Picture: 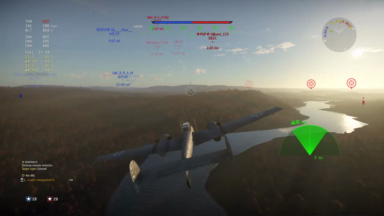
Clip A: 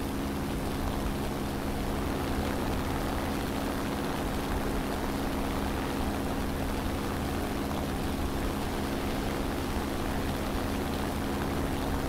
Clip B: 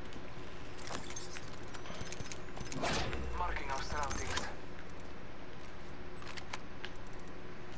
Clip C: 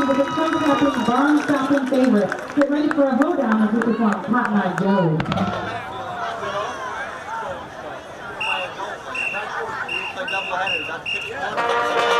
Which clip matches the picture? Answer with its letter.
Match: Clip A